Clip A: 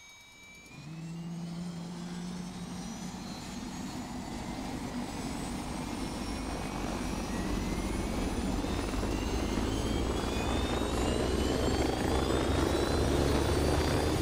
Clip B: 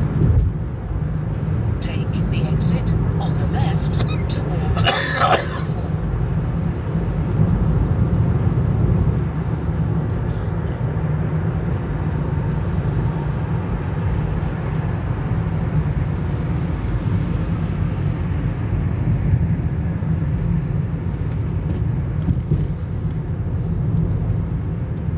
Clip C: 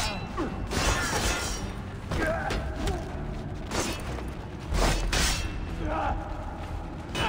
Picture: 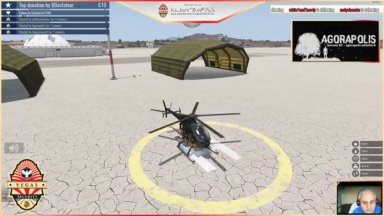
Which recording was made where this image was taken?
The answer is A